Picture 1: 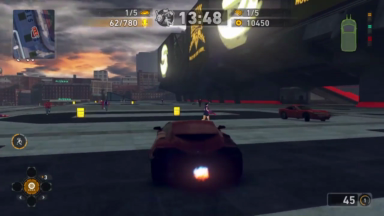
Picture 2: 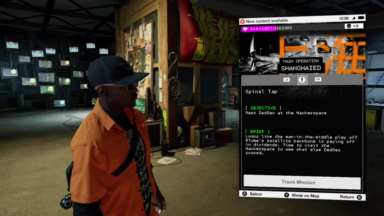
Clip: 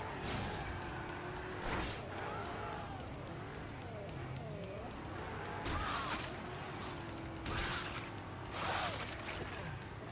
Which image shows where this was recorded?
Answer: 1